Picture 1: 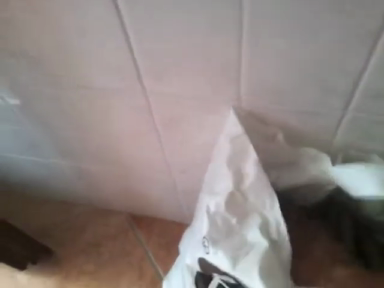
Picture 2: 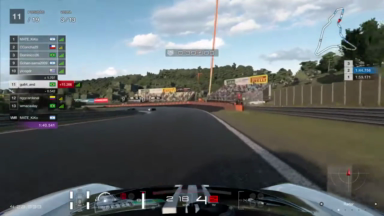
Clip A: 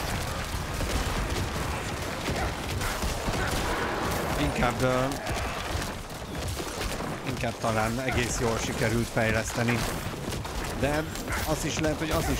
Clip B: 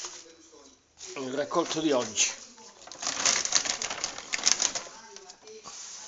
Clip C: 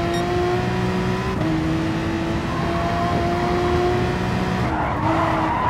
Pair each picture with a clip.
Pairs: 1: B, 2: C